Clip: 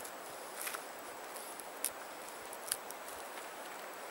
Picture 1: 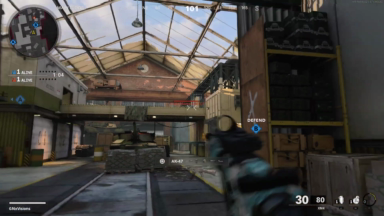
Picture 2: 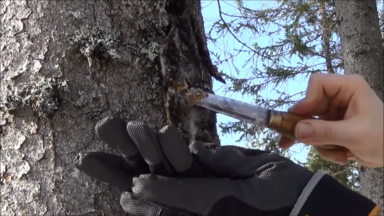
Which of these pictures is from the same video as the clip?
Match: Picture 2